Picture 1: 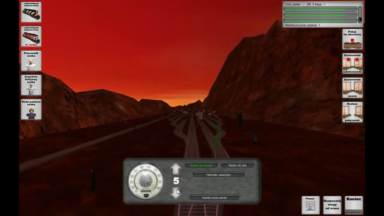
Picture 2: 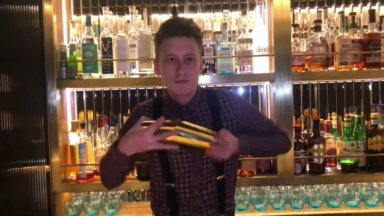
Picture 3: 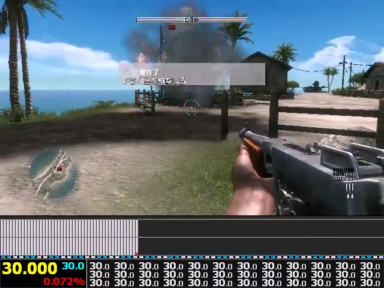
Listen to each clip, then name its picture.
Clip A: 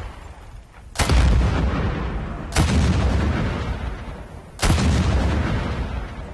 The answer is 3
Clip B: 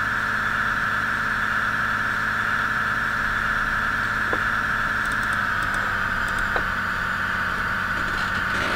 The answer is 1